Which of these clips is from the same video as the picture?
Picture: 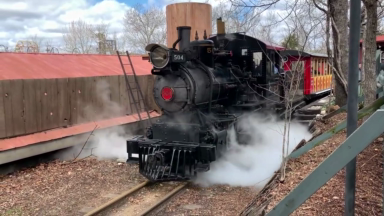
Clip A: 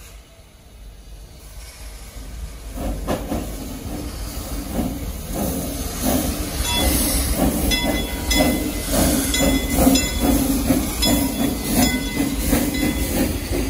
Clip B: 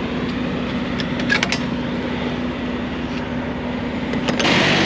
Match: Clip A